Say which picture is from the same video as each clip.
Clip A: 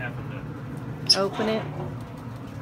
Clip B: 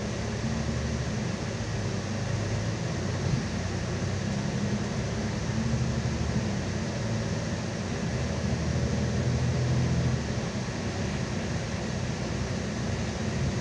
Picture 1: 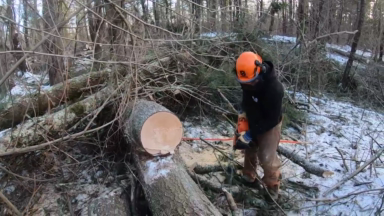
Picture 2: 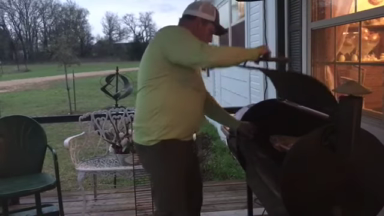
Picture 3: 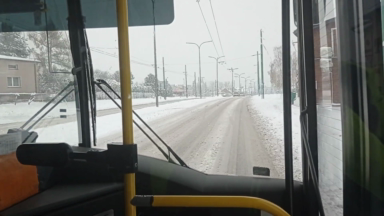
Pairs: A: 2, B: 3